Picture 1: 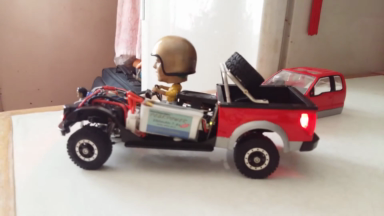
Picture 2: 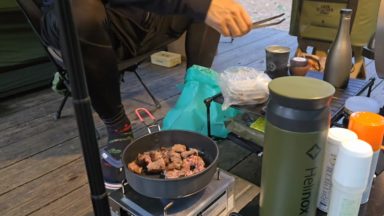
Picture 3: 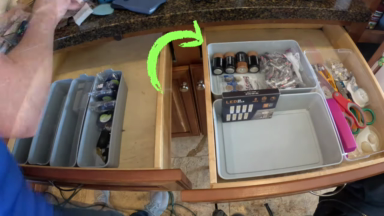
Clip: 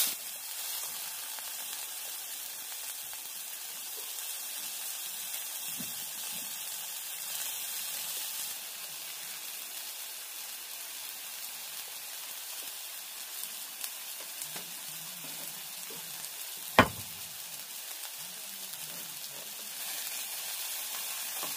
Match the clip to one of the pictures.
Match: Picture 2